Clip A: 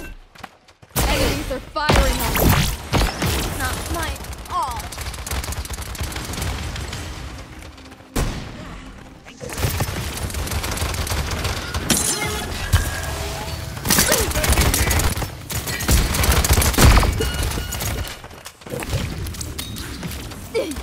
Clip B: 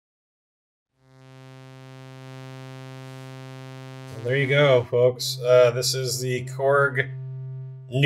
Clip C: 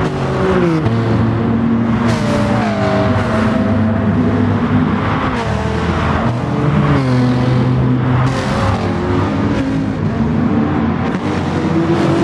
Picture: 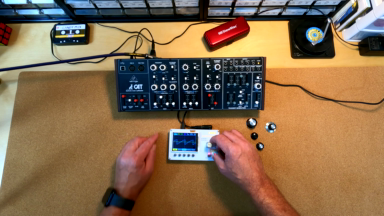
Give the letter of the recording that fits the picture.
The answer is B